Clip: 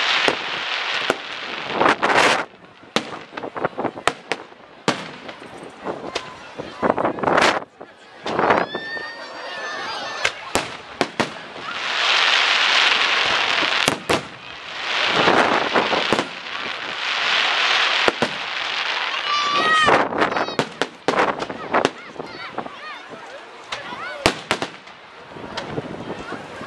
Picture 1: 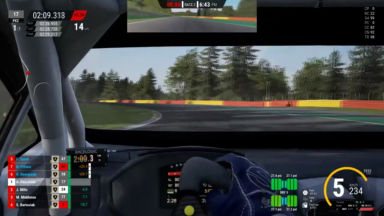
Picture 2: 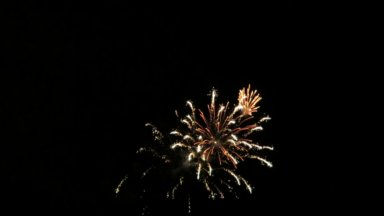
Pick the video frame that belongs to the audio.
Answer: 2